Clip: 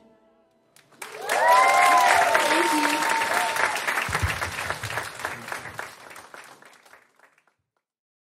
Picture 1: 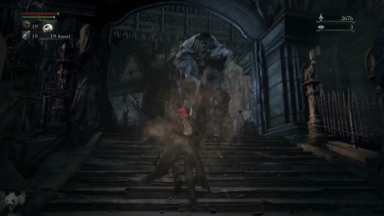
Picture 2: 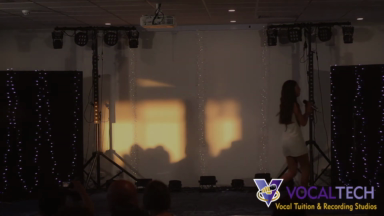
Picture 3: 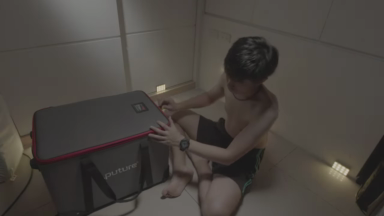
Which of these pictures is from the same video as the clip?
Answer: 2